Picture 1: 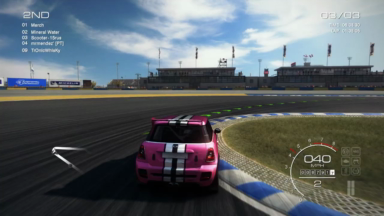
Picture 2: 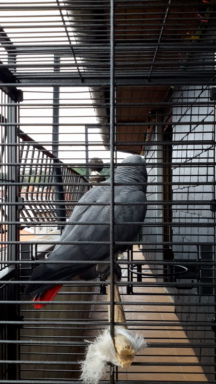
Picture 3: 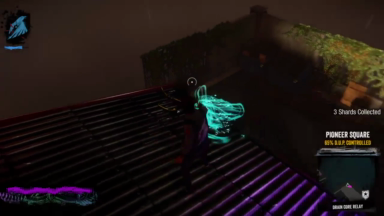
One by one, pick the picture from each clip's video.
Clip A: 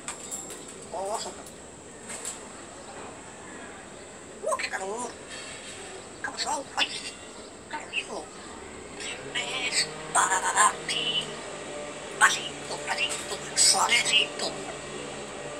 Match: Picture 2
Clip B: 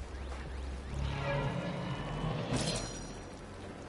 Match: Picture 3